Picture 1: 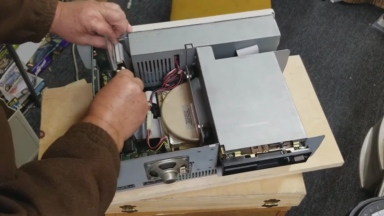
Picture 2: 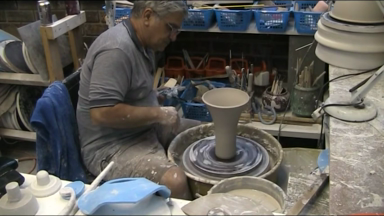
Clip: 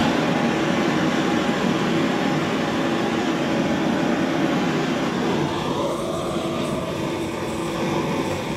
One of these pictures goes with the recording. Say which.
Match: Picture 2